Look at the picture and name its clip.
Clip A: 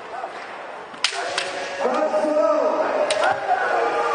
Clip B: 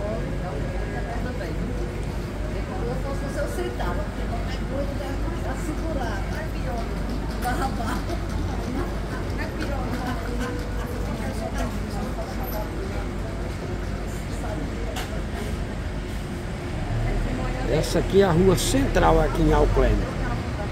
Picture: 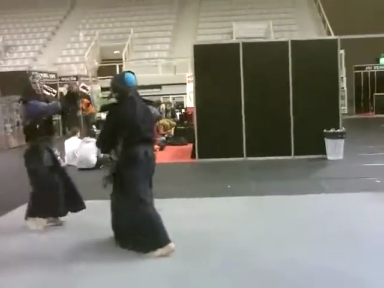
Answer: A